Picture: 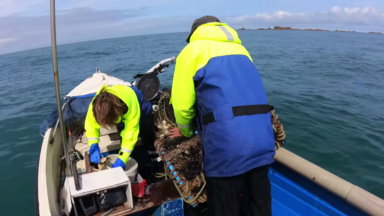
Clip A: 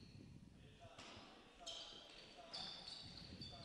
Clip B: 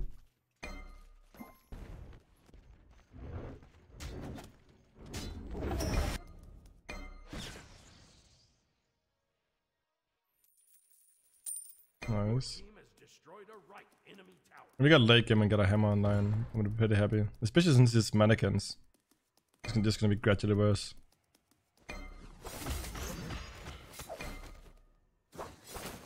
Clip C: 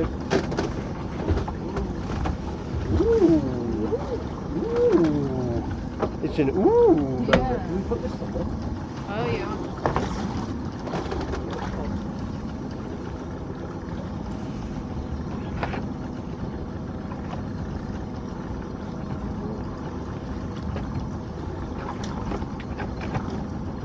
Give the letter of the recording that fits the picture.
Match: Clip C